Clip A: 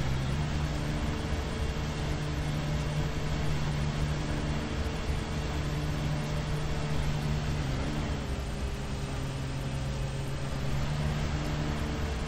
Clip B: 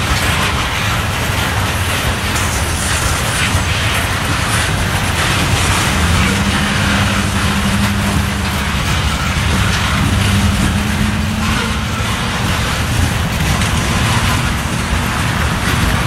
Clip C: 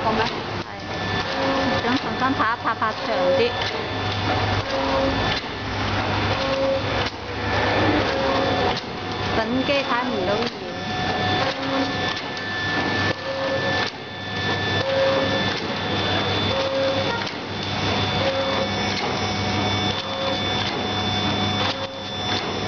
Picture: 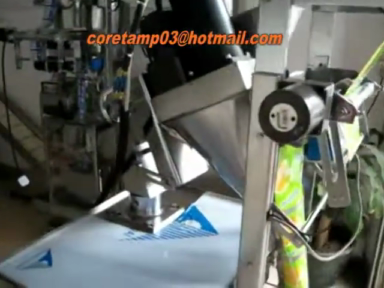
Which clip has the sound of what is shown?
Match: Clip C